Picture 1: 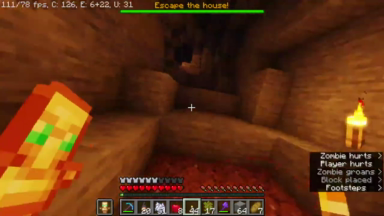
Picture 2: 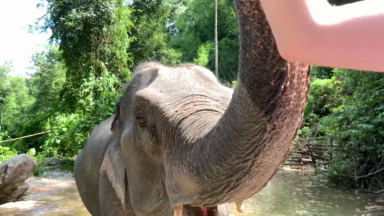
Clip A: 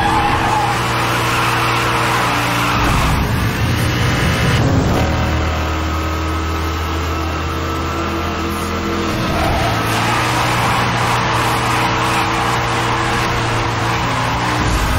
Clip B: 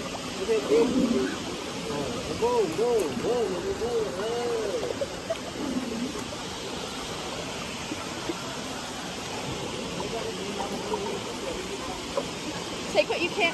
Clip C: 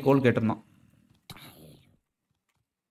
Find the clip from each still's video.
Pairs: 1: C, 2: B